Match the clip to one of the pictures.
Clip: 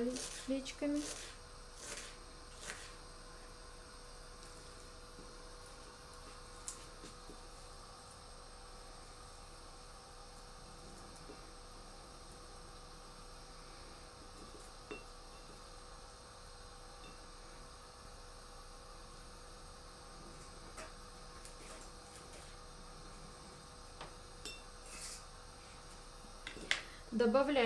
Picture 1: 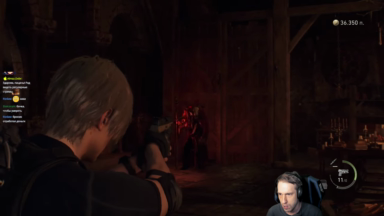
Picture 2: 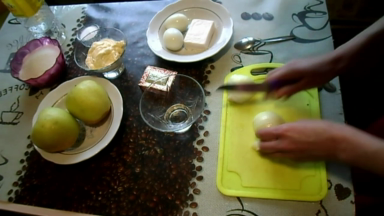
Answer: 2